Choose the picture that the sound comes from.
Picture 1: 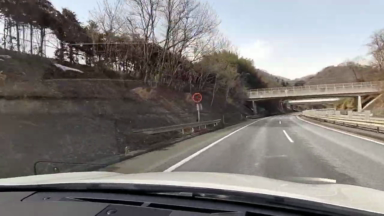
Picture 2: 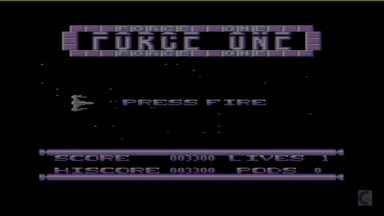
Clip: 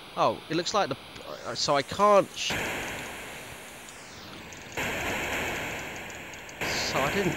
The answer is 2